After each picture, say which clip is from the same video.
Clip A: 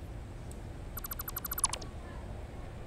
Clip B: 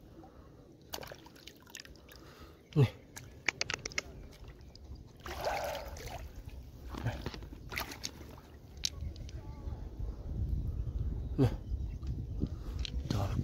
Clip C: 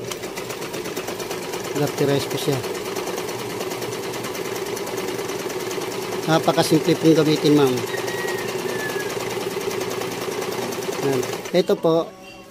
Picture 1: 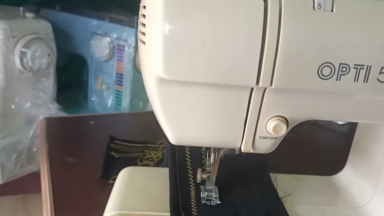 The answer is C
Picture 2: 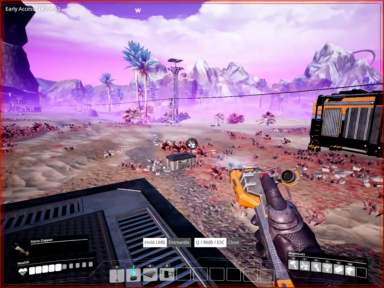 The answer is A